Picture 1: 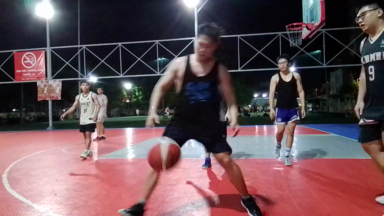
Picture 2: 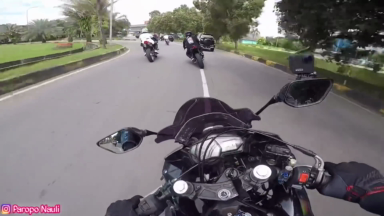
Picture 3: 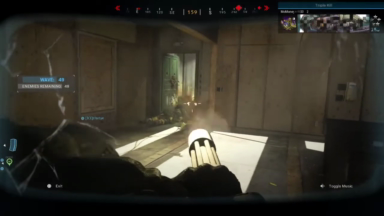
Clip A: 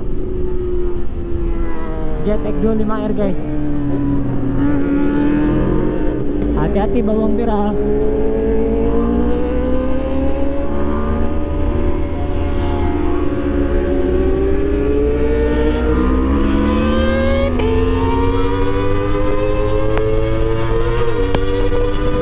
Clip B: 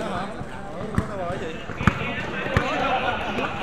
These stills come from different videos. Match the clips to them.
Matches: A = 2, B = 1